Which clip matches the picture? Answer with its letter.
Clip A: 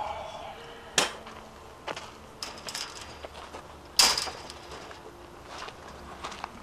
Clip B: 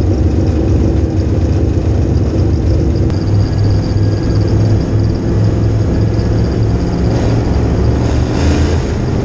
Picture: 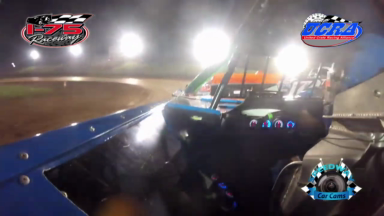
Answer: B